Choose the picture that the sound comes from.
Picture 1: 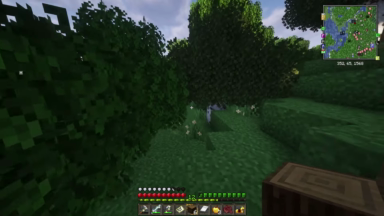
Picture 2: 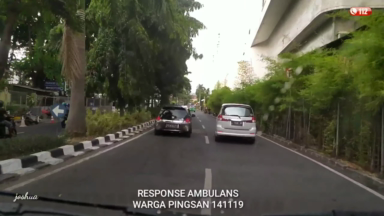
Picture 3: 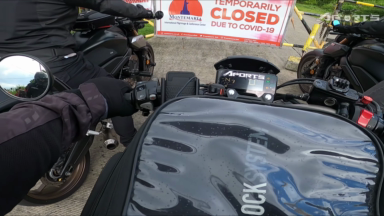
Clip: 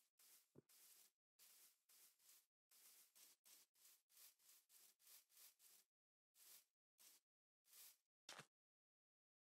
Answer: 1